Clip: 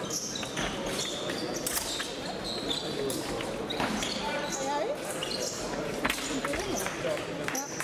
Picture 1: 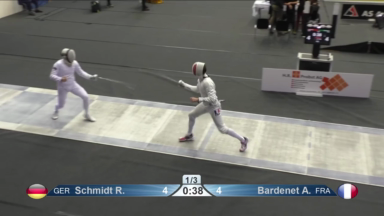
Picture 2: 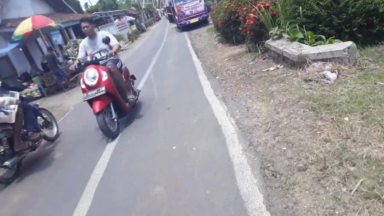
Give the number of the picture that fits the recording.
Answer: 1